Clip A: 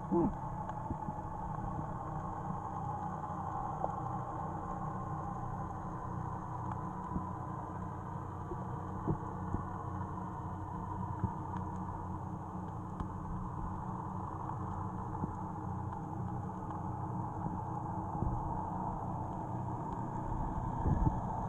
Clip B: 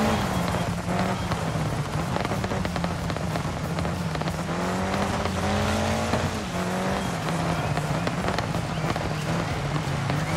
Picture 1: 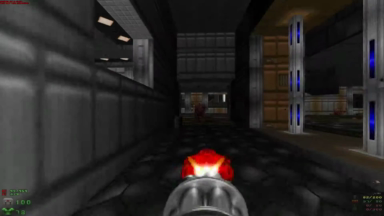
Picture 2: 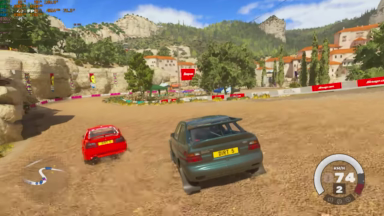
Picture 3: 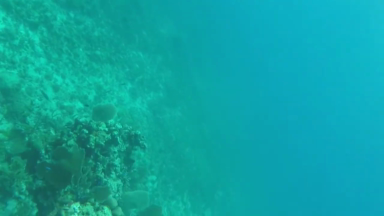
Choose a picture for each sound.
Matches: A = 3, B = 2